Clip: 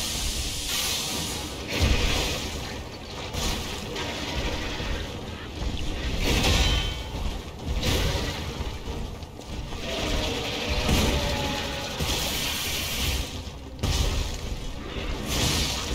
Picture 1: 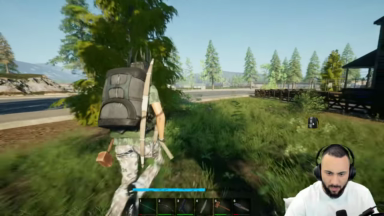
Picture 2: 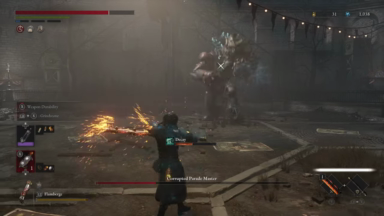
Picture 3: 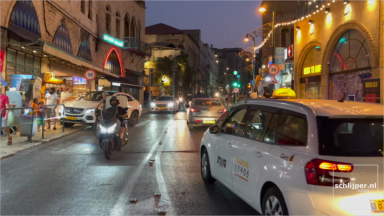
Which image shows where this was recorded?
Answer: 2